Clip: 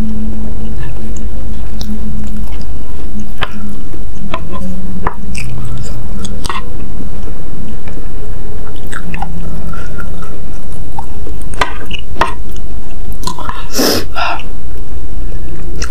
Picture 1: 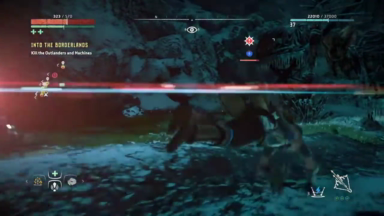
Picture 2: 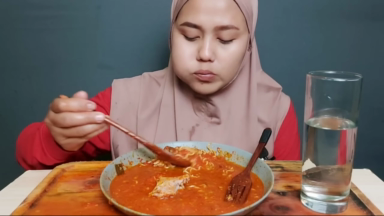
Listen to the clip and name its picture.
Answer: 2